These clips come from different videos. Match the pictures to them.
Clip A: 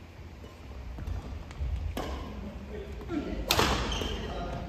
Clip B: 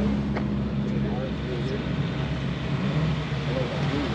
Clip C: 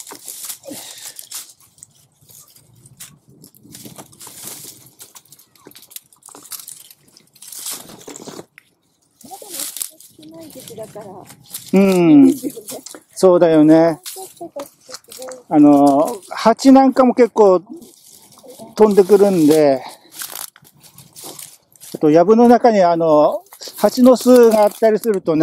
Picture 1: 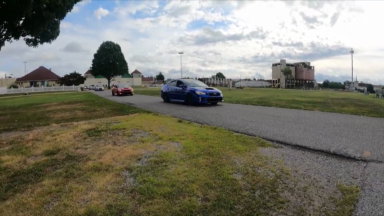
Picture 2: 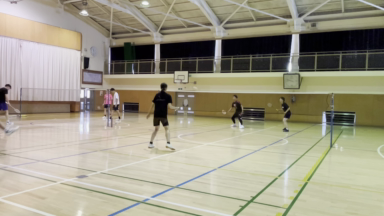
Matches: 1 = B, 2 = A